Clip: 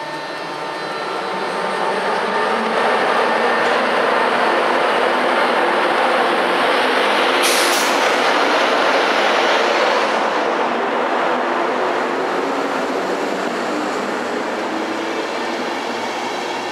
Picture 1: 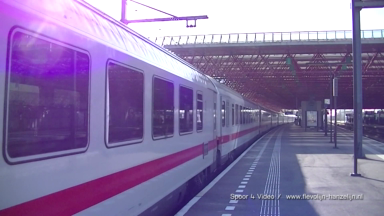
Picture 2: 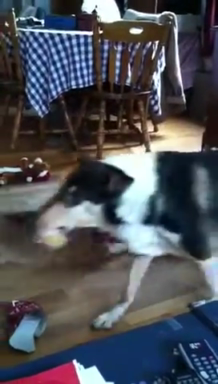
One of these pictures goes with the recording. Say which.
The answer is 1